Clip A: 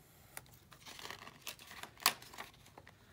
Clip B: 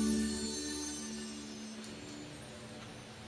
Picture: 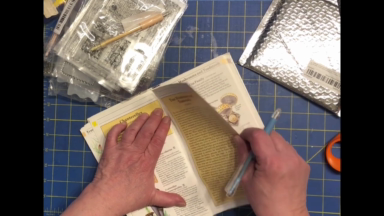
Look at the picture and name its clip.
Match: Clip A